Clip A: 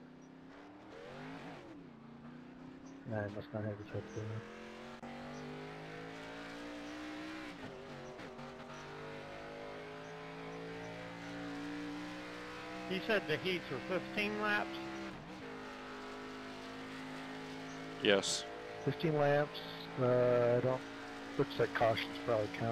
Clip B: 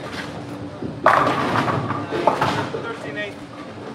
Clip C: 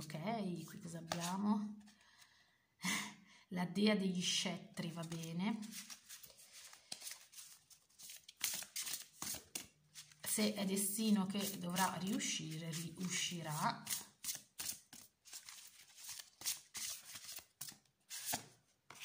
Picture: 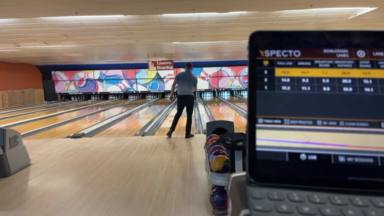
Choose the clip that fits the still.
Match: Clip B